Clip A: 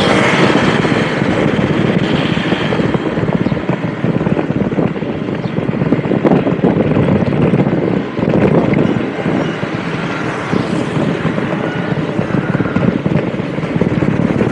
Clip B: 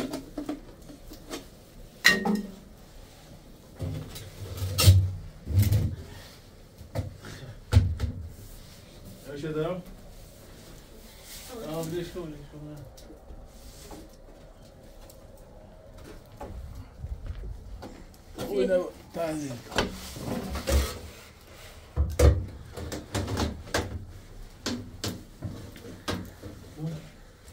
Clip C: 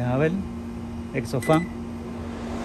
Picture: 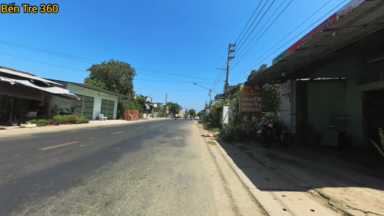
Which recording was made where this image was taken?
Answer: A